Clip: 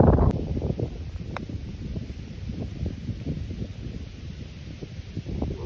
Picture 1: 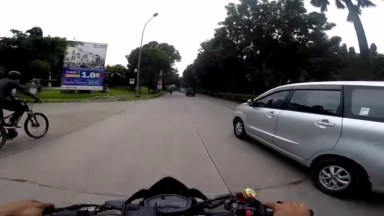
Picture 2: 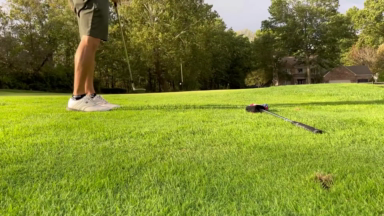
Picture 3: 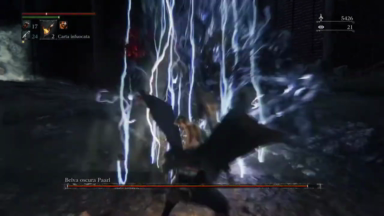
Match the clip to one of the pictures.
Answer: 2